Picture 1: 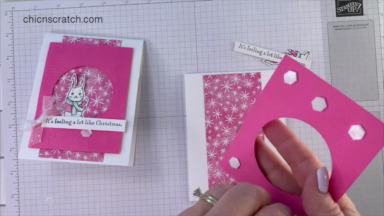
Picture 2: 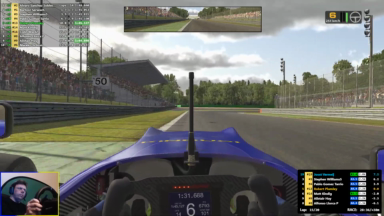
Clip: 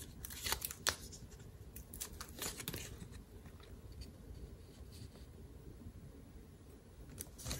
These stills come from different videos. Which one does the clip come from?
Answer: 1